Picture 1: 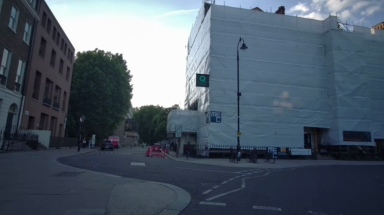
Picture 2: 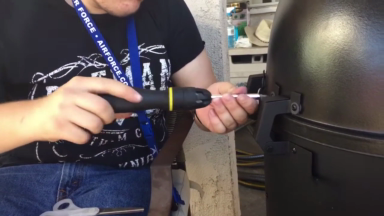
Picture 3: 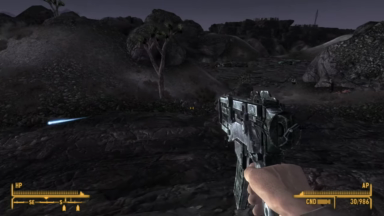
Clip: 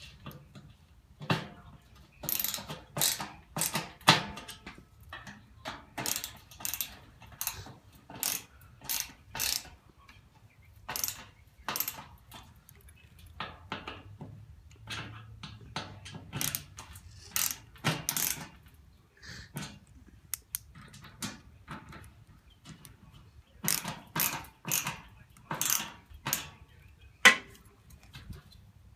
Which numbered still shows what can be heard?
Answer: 2